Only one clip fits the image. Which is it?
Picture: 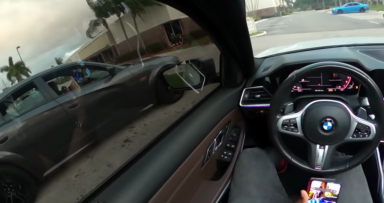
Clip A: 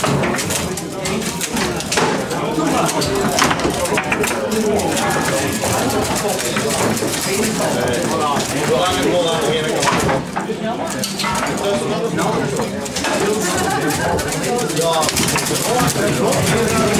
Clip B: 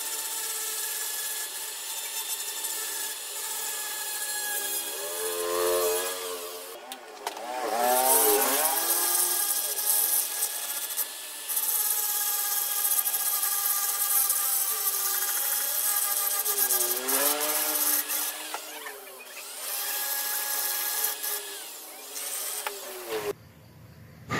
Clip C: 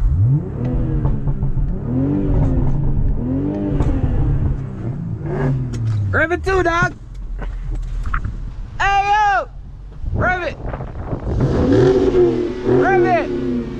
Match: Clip C